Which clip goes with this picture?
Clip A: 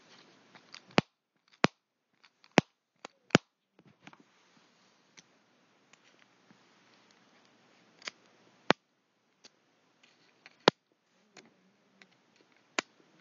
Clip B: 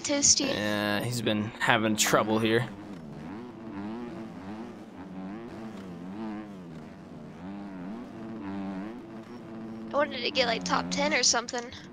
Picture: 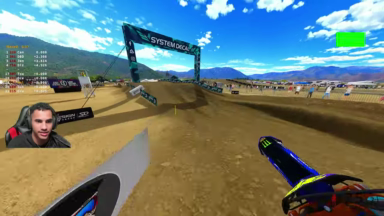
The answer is B